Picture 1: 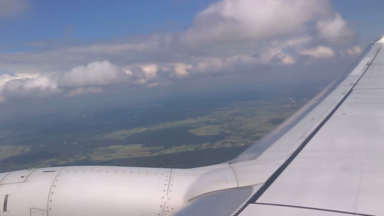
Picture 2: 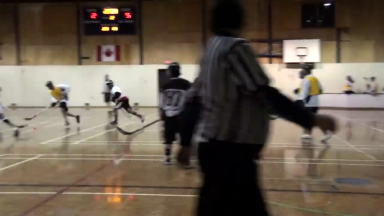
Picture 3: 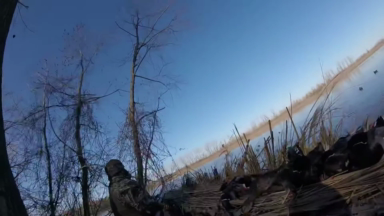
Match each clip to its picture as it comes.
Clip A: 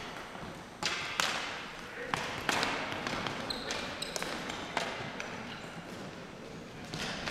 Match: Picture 2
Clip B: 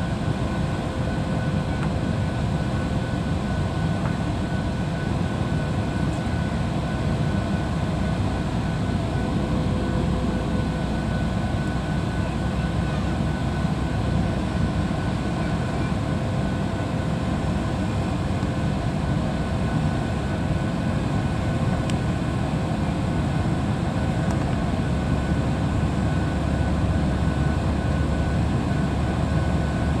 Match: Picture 1